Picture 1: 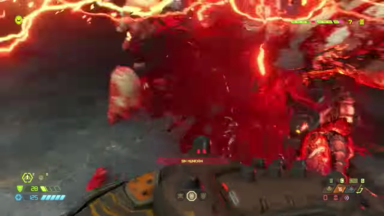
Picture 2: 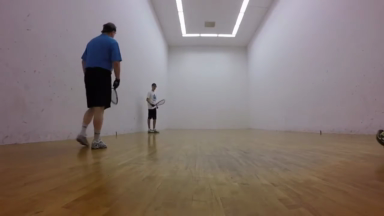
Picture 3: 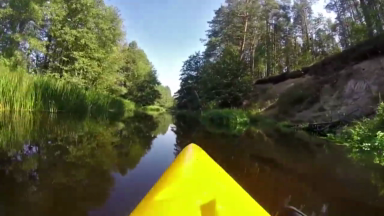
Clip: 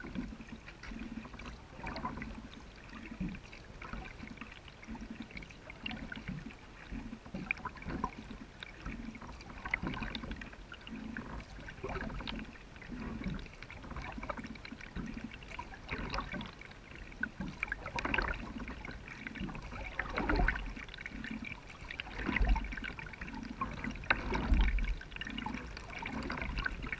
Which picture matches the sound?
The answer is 3